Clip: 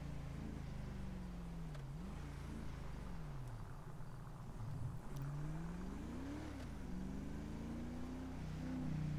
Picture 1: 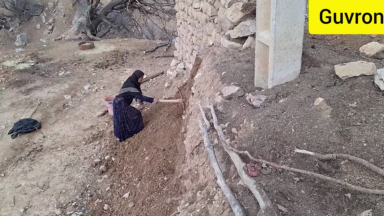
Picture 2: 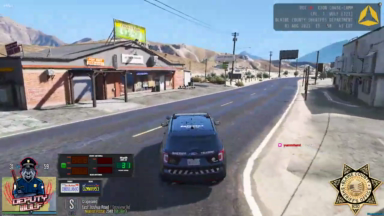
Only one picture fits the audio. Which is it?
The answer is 2